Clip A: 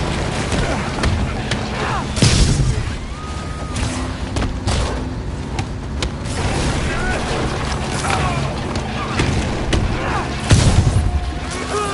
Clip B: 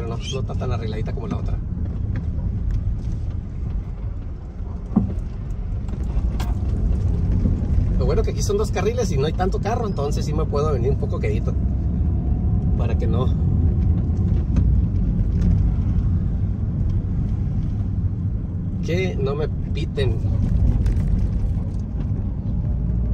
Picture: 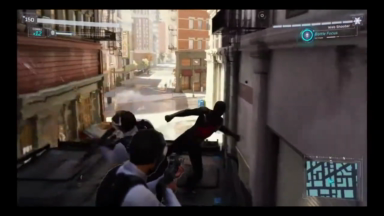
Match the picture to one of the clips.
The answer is A